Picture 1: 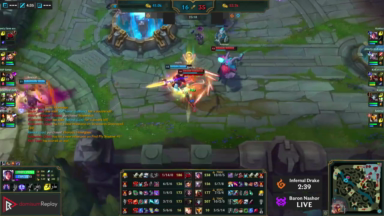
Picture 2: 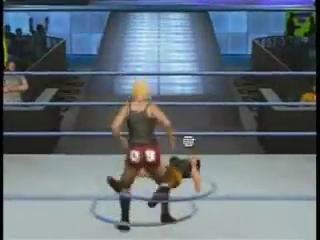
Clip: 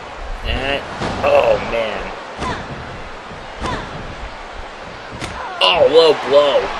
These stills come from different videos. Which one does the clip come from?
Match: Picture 2